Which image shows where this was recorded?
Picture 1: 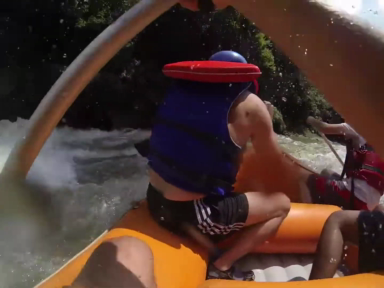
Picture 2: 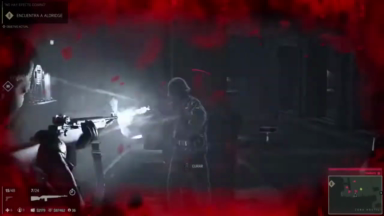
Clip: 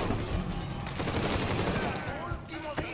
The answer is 2